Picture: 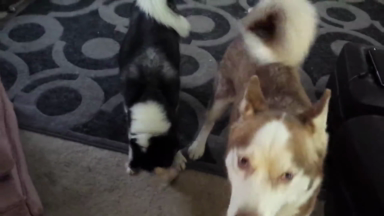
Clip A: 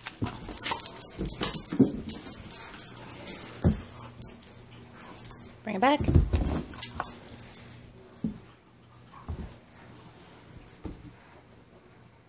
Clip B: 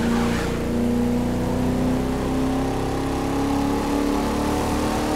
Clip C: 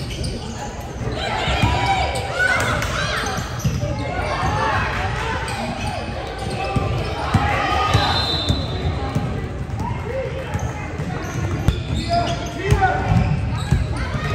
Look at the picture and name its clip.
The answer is A